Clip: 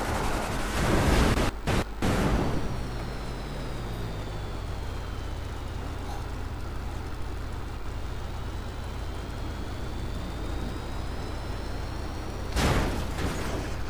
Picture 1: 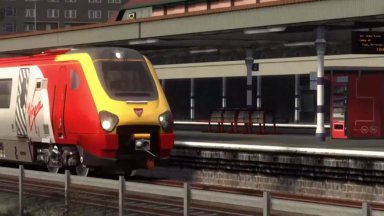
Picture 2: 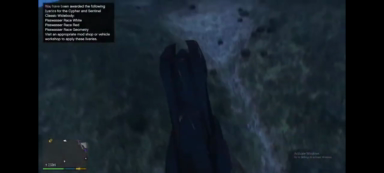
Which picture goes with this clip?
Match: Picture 2